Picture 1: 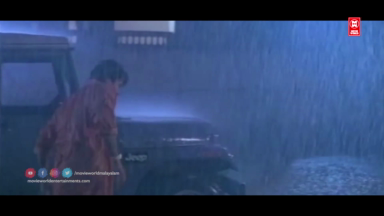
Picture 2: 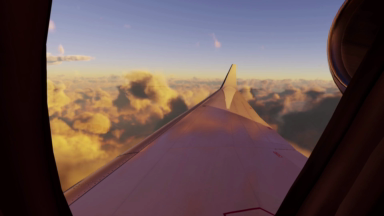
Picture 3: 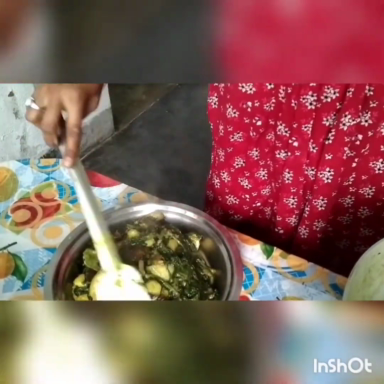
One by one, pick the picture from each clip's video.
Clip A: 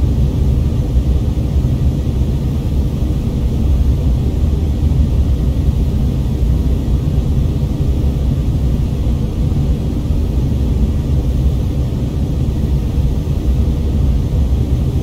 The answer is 2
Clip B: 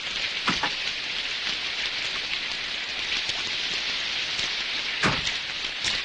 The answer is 1